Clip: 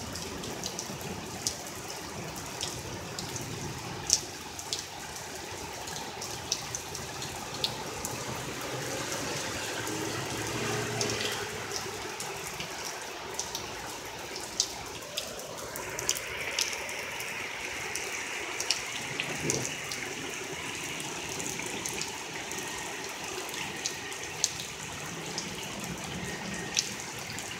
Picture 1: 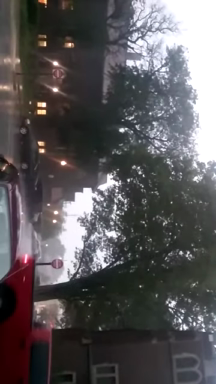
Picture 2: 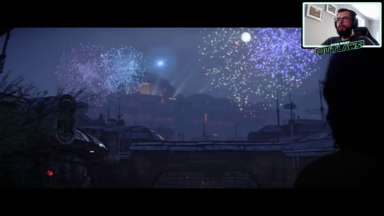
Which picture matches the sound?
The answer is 1